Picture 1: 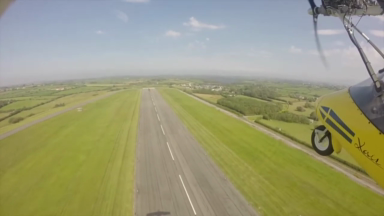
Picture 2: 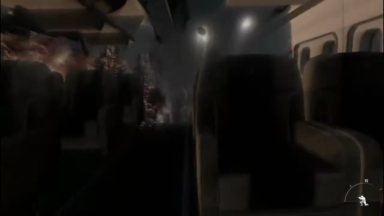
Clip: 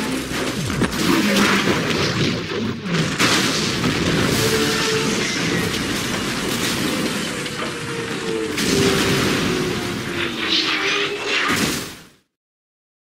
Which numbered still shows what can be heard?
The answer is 2